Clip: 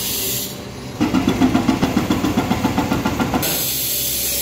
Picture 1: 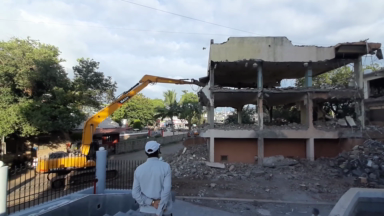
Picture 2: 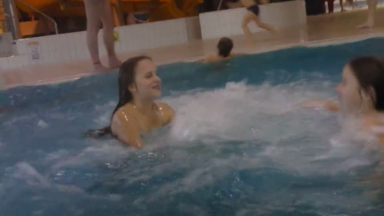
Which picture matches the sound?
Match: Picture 1